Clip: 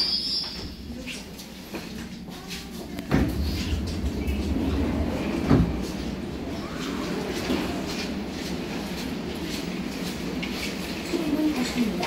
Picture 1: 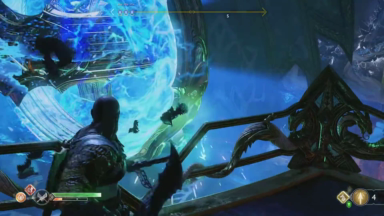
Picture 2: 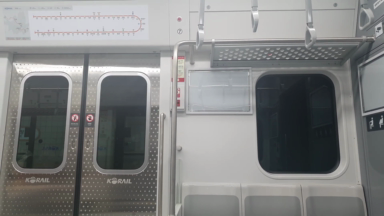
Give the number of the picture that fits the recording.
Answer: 2